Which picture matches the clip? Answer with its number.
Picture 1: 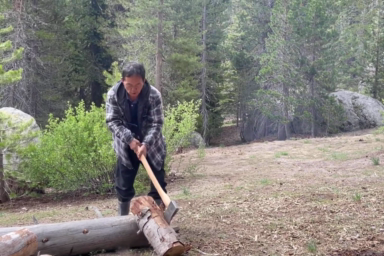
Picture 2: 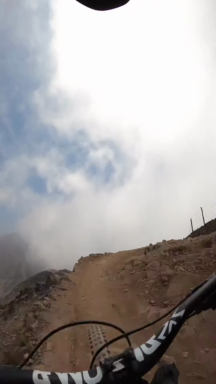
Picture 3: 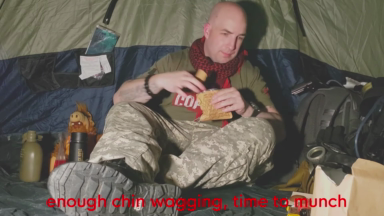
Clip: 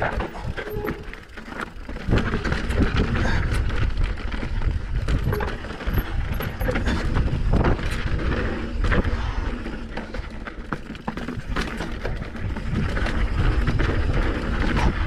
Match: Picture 2